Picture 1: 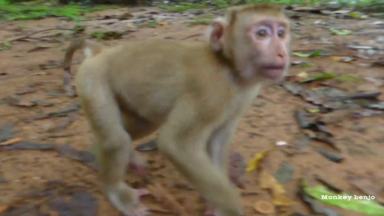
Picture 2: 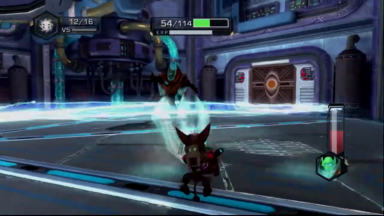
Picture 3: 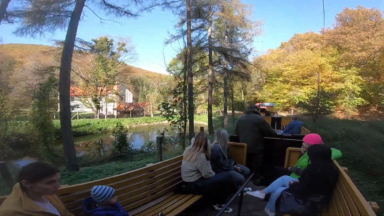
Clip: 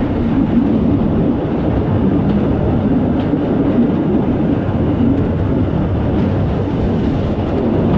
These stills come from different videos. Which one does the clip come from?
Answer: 3